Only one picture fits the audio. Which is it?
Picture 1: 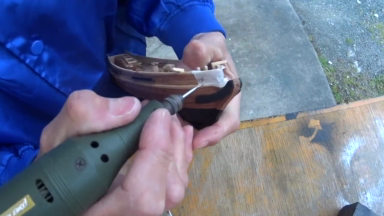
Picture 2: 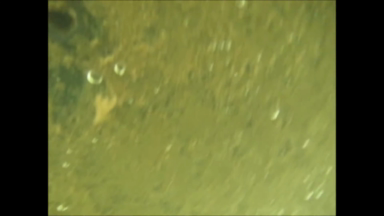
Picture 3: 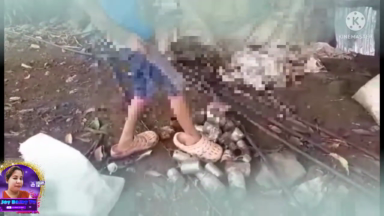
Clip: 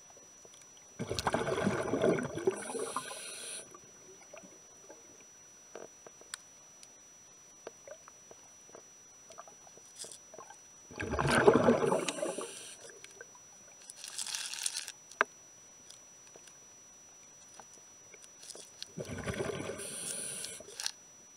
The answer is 2